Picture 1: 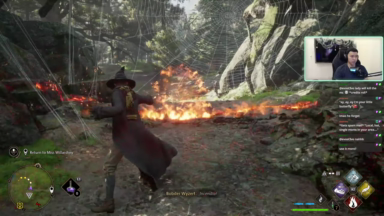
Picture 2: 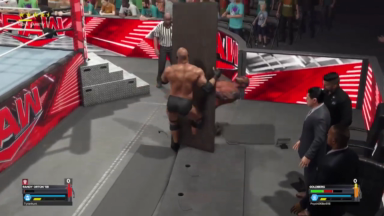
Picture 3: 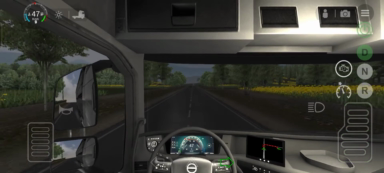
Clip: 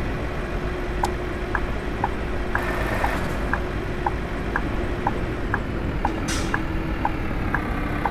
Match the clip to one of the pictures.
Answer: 3